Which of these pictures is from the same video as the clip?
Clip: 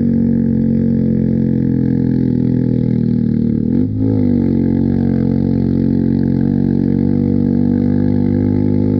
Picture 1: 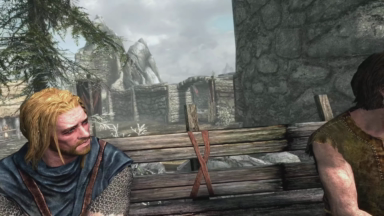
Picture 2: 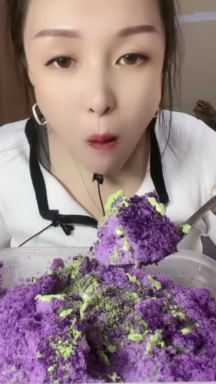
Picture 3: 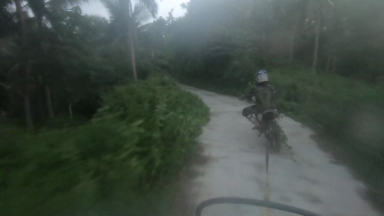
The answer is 3